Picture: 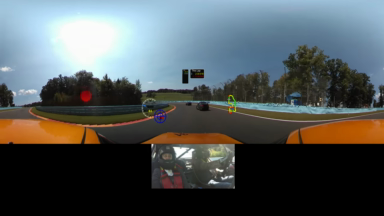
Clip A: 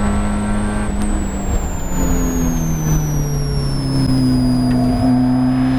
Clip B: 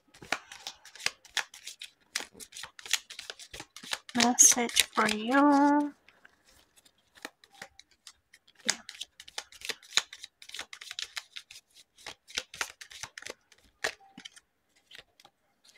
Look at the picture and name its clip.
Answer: A